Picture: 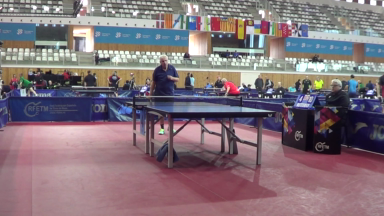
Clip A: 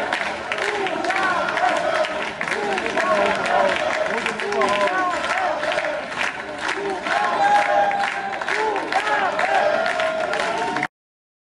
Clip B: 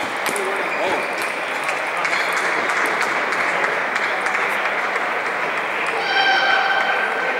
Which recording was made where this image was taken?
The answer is B